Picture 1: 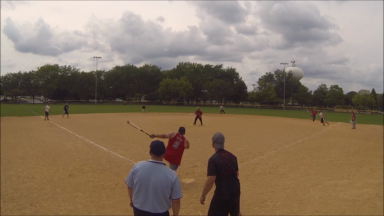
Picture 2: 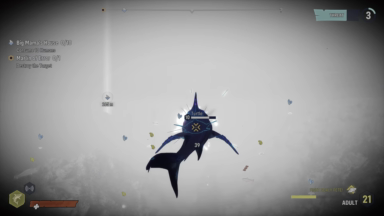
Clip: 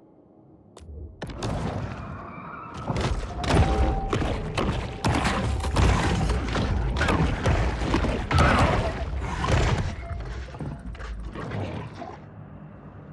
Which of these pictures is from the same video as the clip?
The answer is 2